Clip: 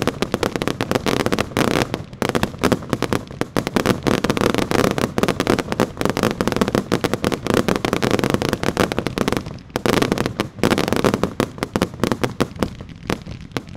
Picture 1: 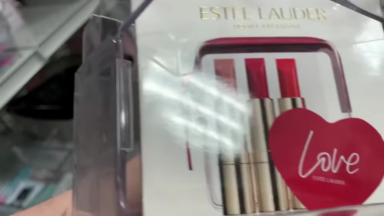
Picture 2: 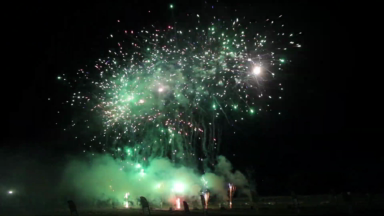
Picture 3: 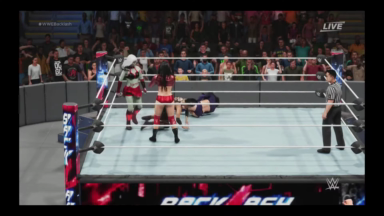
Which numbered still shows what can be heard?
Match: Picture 2